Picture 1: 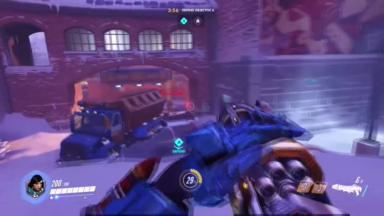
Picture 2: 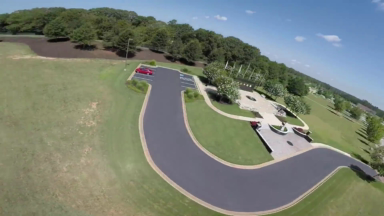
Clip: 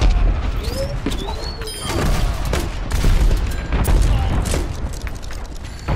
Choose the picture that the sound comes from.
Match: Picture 1